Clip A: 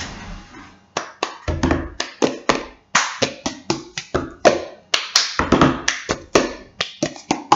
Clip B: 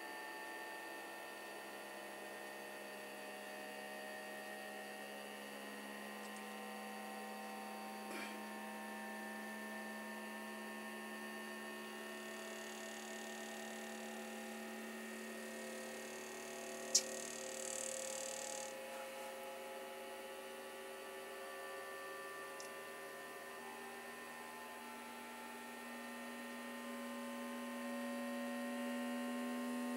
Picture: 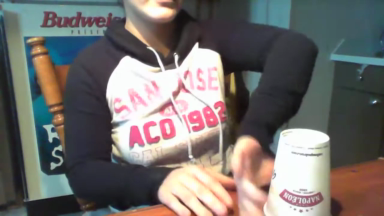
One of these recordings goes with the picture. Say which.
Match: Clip A